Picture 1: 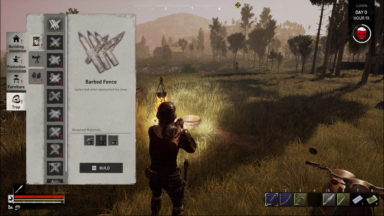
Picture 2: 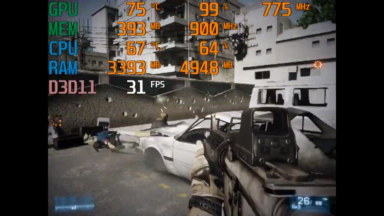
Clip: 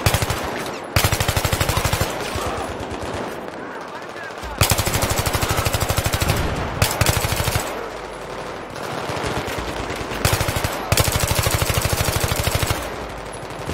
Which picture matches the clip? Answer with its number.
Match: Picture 2